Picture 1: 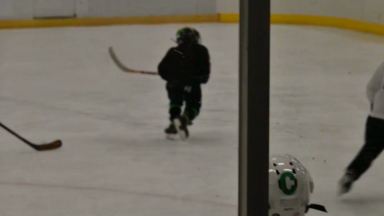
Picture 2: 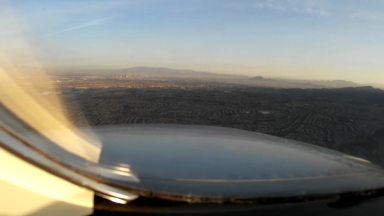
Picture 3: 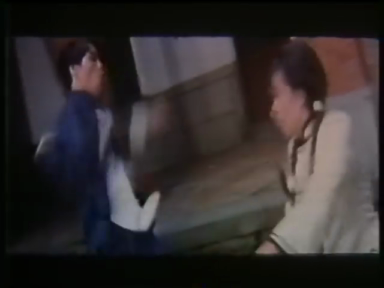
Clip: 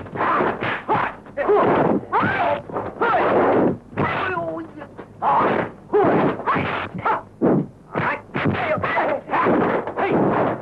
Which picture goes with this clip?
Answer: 3